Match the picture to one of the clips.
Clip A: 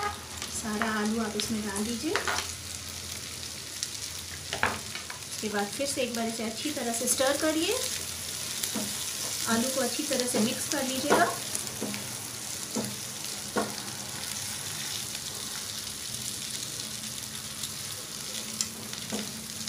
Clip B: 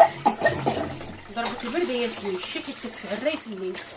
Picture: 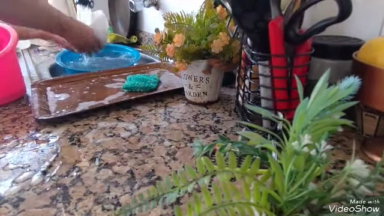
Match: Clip B